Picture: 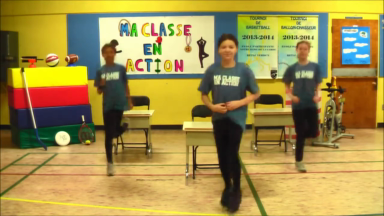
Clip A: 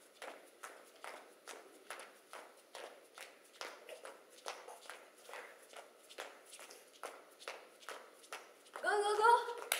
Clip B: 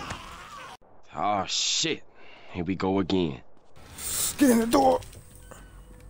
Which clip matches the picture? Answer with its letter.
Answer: A